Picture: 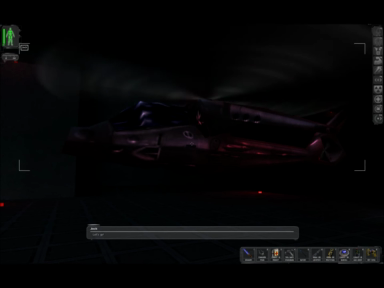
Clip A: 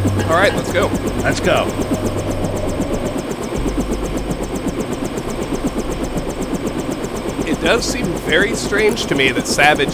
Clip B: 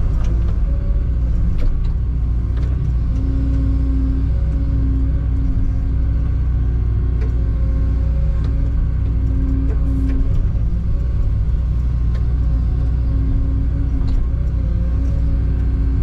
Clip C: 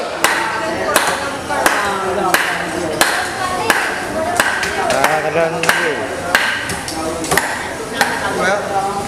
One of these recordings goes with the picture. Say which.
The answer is A